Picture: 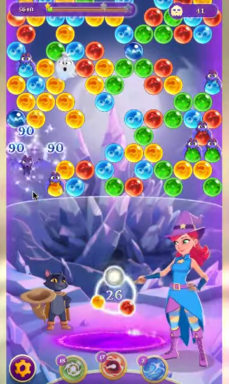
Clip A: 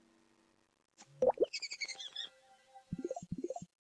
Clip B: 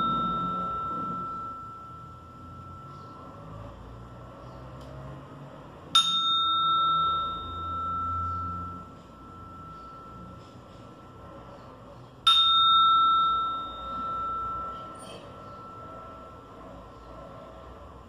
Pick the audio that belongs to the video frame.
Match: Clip A